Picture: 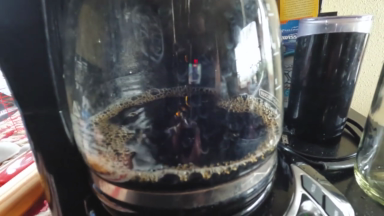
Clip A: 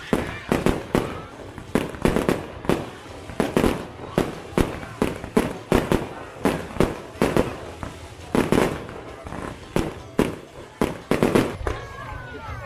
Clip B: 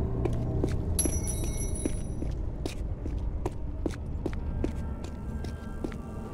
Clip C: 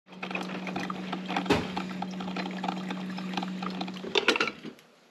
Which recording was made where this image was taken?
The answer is C